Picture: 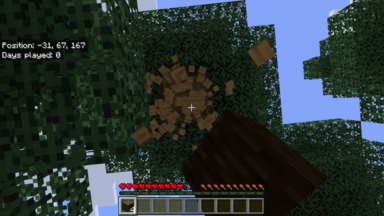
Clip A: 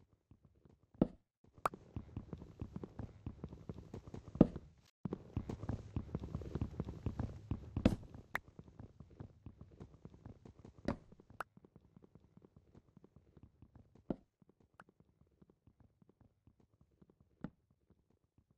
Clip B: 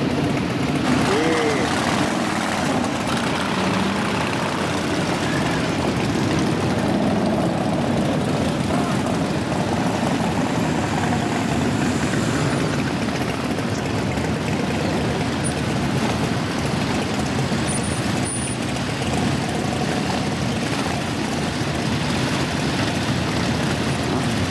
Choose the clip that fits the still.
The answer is A